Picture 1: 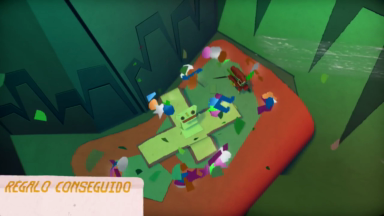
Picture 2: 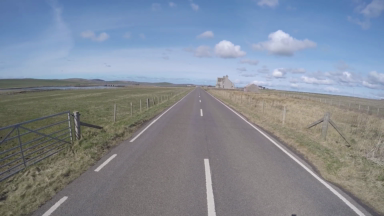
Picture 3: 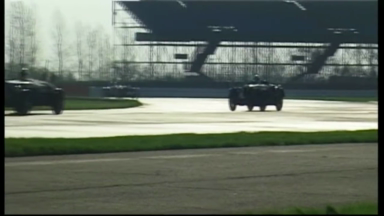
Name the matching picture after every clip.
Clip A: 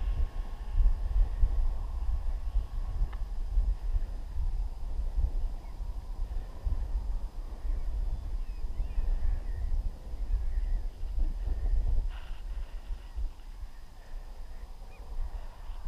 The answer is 2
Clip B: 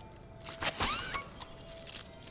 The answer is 1